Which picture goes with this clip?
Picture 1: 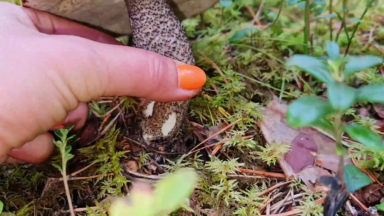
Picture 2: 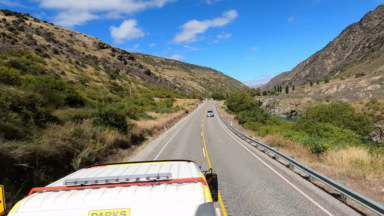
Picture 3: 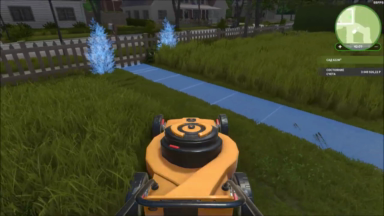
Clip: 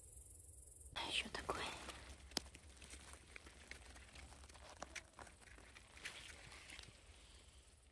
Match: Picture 1